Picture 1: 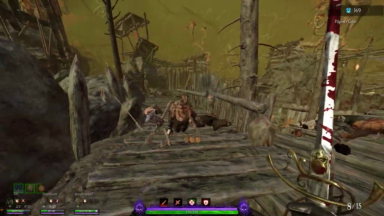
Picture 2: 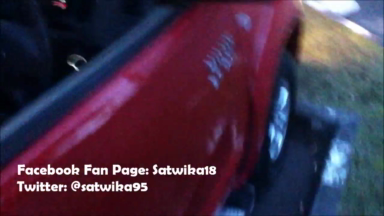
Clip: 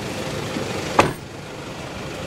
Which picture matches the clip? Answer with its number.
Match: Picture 2